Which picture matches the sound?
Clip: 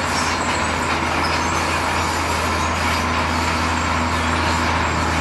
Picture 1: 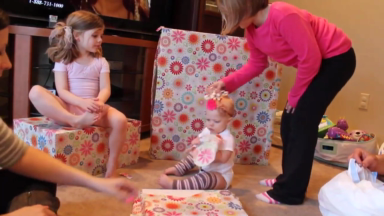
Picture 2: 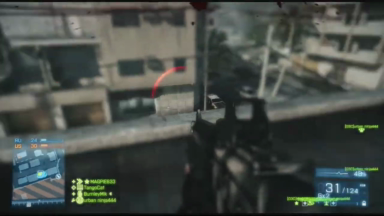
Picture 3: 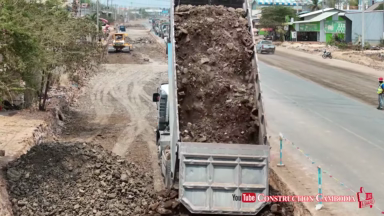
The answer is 3